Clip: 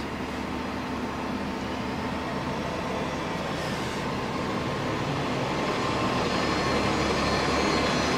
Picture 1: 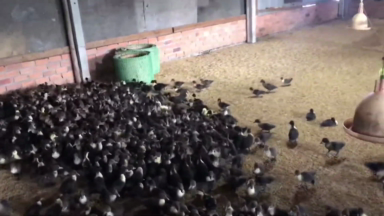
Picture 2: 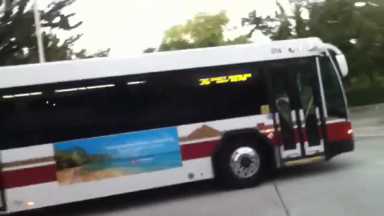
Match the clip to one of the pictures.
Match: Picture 2